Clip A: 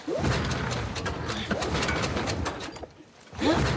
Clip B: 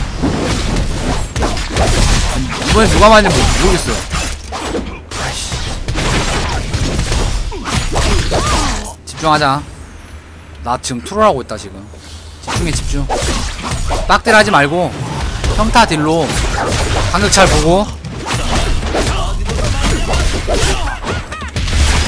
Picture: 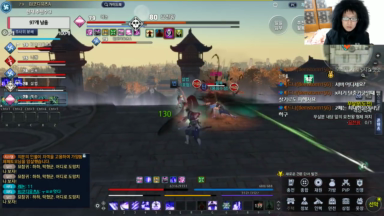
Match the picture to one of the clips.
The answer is B